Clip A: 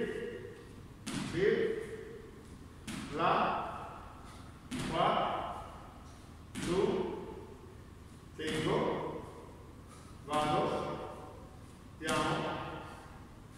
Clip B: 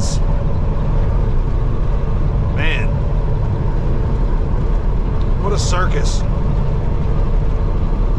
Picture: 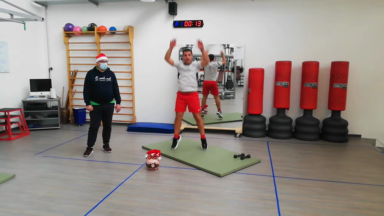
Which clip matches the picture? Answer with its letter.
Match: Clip A